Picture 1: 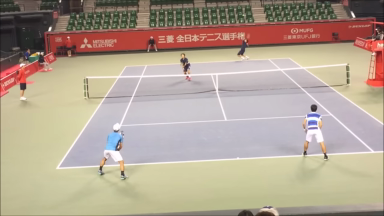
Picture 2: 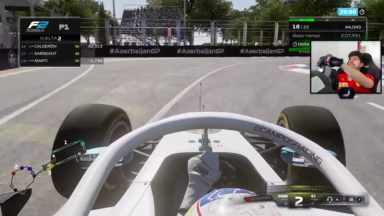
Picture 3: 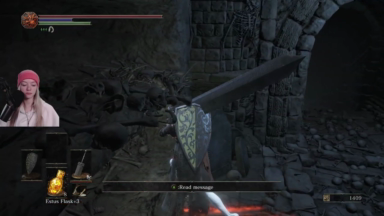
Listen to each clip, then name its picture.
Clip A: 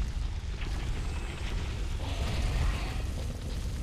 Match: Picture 3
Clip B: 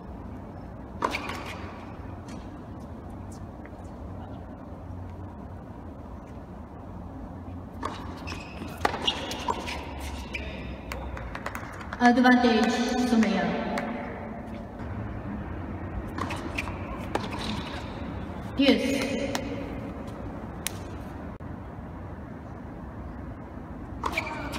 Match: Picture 1